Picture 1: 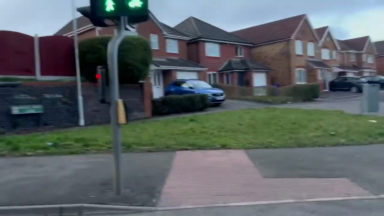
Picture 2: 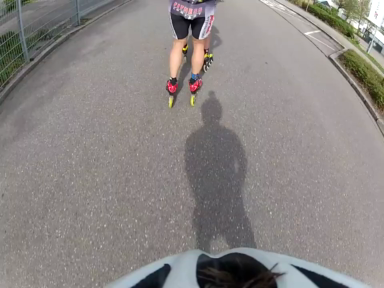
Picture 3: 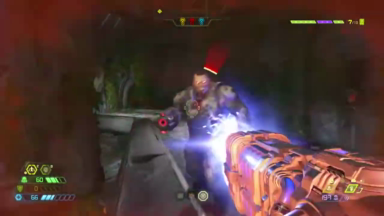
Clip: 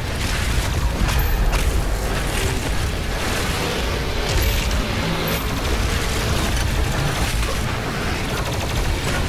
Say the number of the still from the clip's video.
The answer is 3